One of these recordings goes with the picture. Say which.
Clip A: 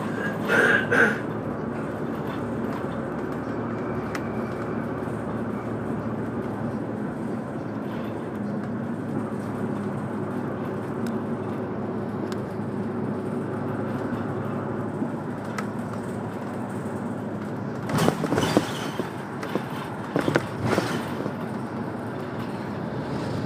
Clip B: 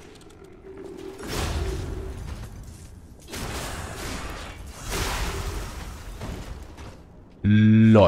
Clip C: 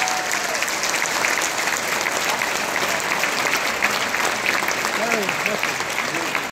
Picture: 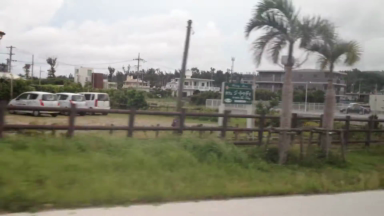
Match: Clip A